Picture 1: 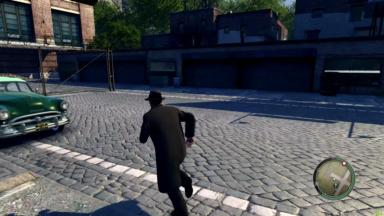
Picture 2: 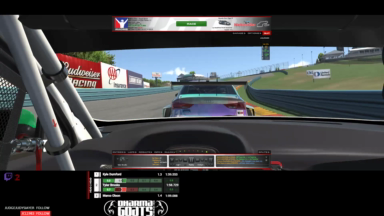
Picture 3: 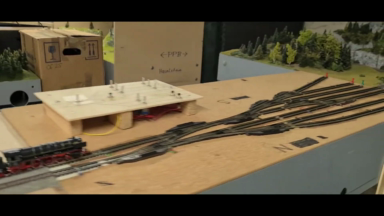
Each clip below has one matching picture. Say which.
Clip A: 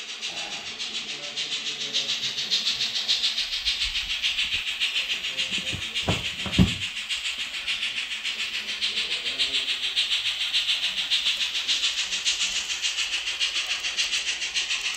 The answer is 3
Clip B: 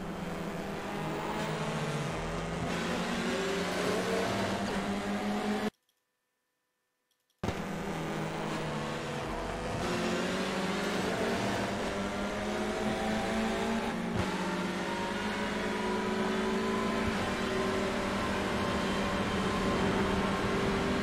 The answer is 2